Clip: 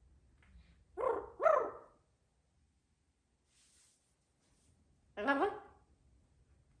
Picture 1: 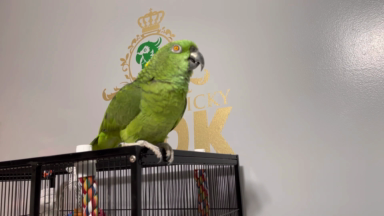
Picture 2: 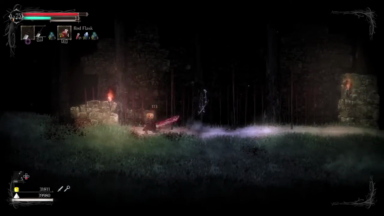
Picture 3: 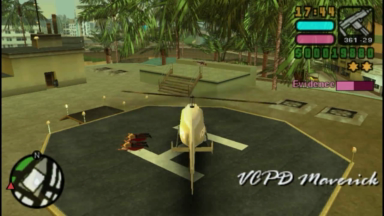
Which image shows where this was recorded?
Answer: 1